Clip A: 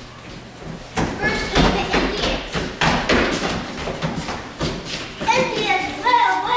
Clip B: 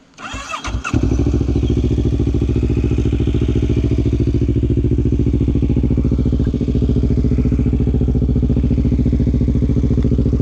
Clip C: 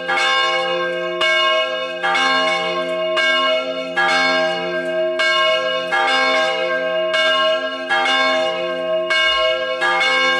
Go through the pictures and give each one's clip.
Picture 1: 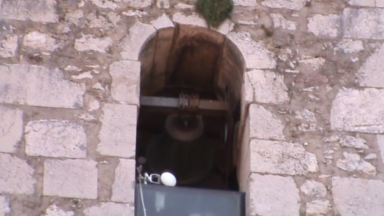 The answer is C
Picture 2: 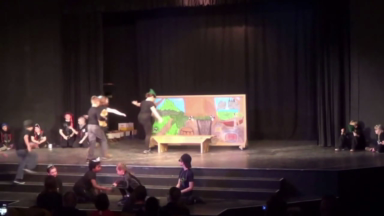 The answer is A